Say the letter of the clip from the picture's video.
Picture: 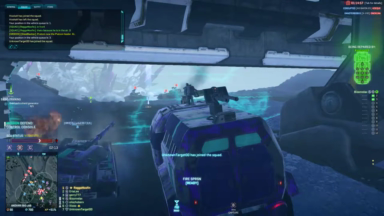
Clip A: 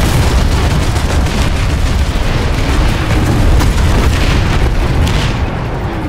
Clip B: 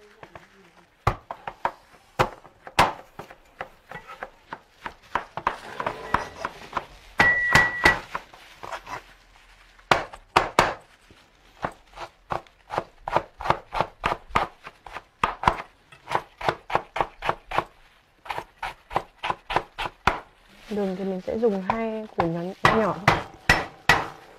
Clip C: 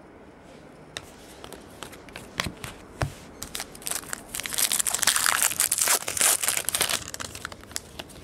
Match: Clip A